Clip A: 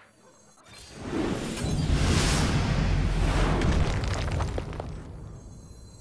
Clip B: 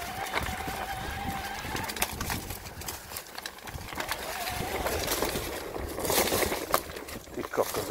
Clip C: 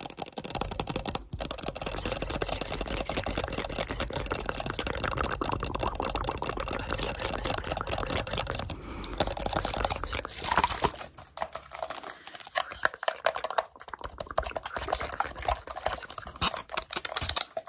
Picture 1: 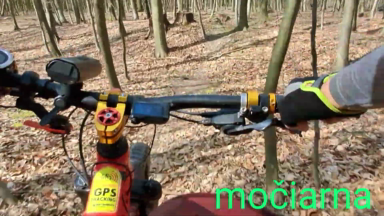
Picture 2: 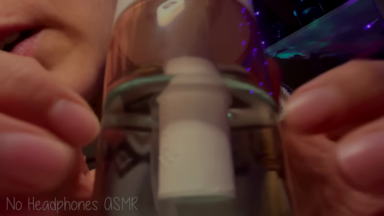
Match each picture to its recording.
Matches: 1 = B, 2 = C